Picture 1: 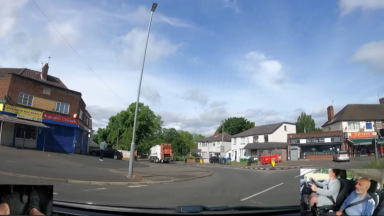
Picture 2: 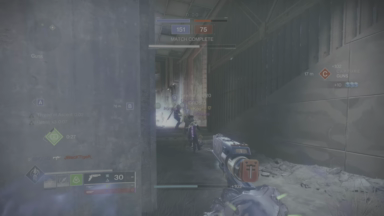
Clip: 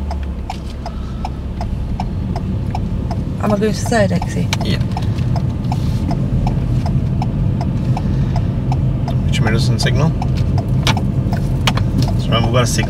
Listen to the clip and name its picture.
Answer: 1